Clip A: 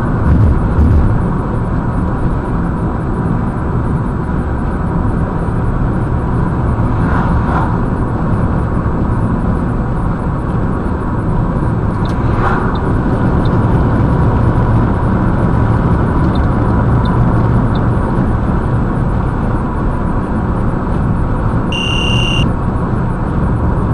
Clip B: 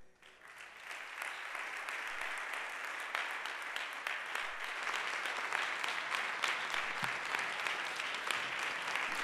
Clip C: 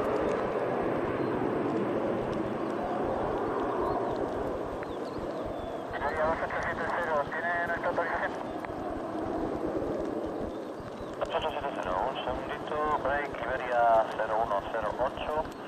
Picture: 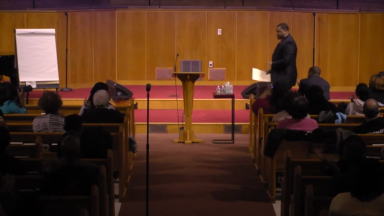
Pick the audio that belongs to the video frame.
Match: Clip B